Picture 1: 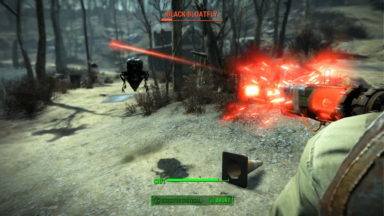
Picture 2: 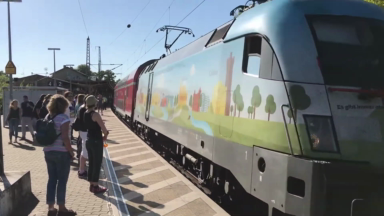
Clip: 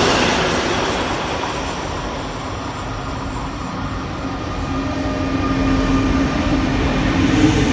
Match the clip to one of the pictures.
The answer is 2